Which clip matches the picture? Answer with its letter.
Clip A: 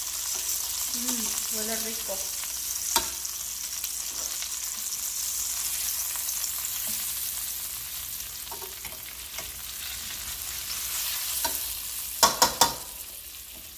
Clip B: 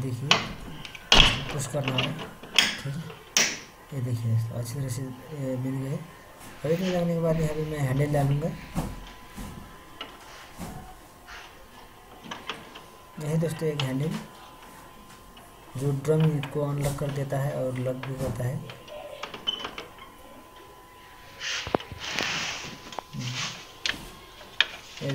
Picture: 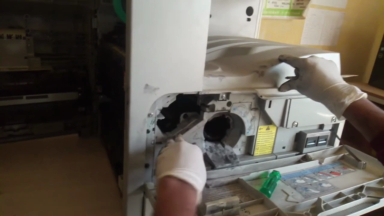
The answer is B